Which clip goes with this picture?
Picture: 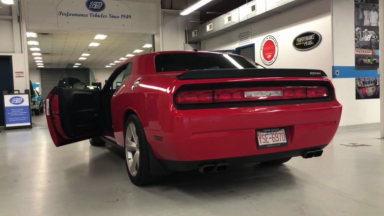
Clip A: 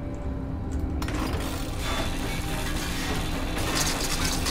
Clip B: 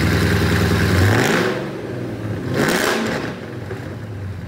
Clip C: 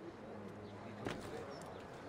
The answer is B